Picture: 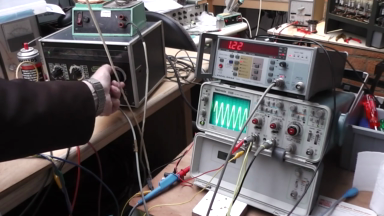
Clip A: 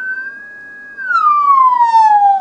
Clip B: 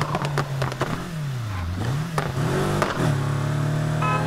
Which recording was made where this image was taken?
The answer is A